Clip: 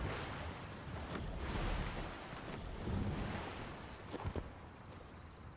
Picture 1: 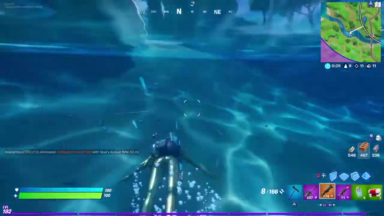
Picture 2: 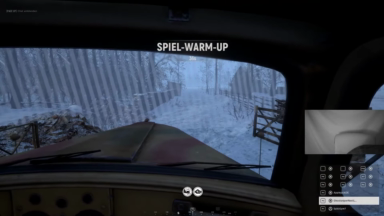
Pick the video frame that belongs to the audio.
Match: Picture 1